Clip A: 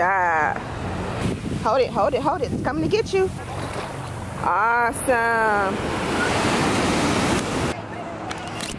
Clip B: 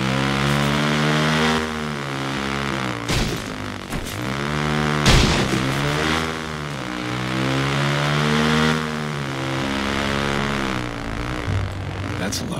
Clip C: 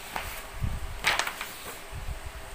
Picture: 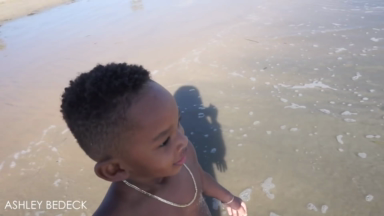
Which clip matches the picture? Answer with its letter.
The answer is A